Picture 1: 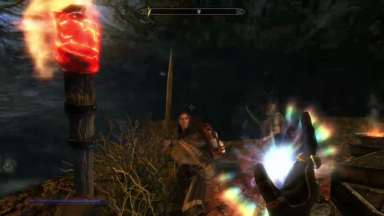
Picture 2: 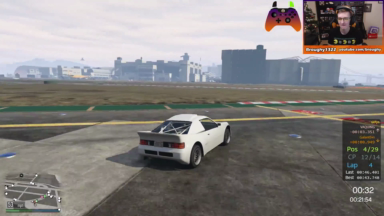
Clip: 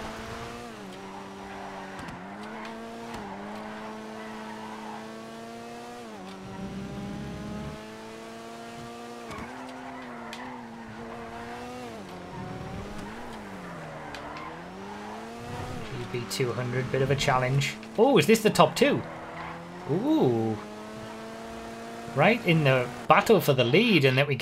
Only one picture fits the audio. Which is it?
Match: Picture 2